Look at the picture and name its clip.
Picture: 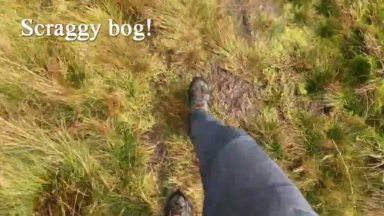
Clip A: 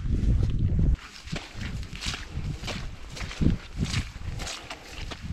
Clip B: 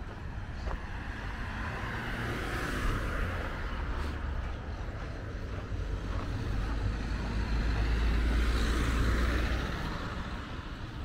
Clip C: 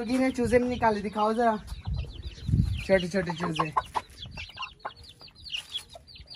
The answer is A